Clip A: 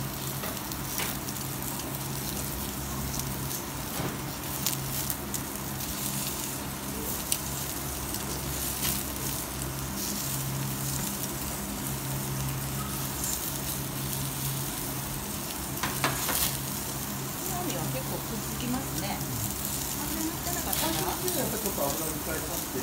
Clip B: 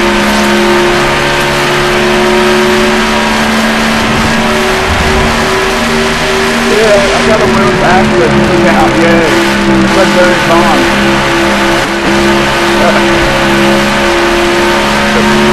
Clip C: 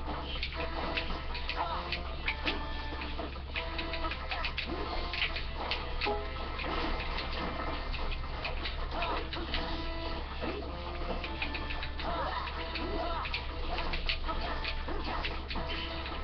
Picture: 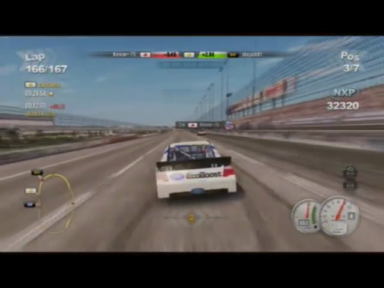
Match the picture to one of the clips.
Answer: B